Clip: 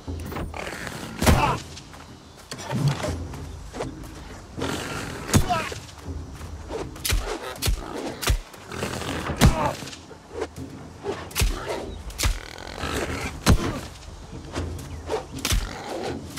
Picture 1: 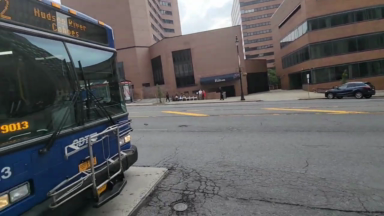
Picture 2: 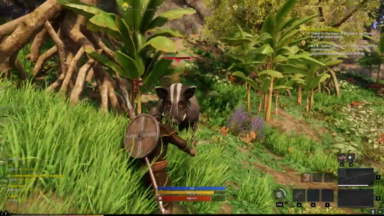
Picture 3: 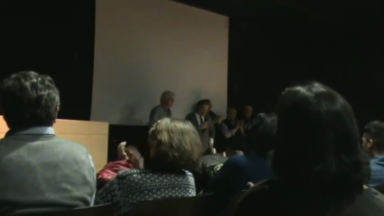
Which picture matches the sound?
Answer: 2